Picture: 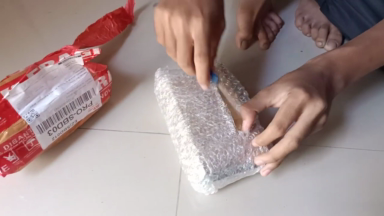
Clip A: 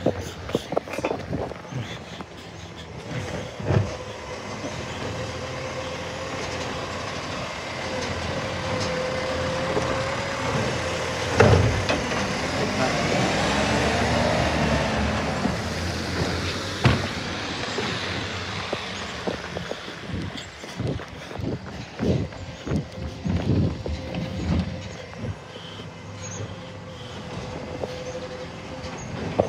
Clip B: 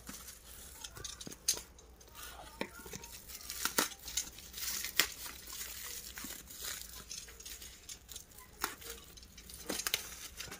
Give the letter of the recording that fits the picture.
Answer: B